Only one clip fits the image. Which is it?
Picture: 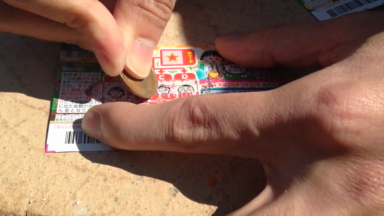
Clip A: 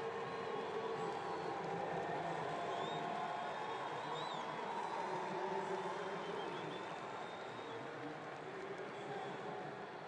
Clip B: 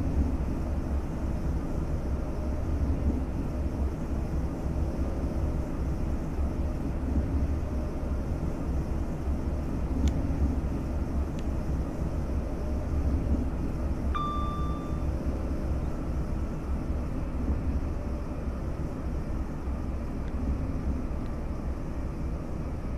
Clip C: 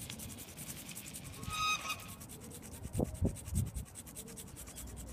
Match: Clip C